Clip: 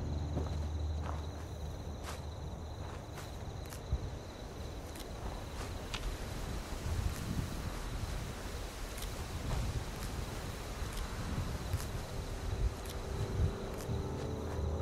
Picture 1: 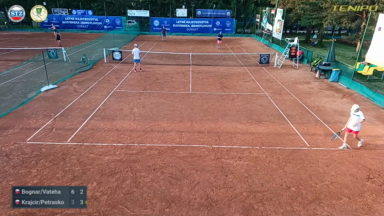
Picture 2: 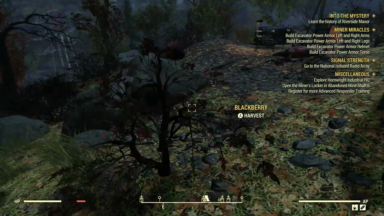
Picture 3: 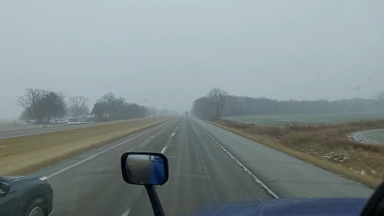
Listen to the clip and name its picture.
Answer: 2